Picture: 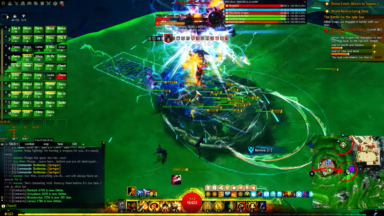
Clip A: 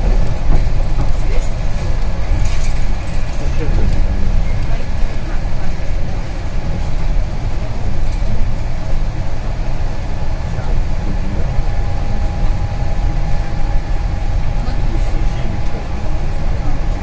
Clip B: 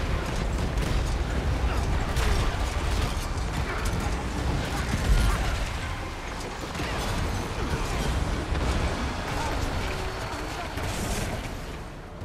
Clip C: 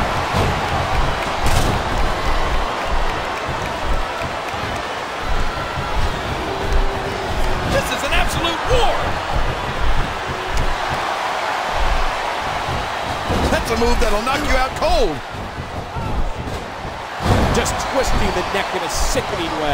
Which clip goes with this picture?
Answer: B